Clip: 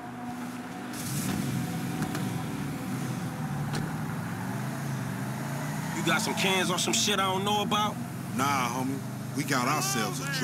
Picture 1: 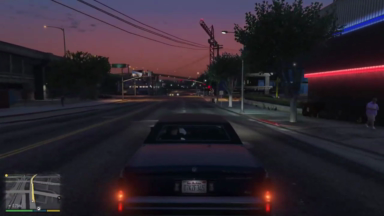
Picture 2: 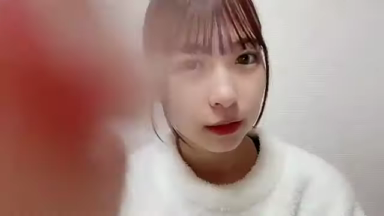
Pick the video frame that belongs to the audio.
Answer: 1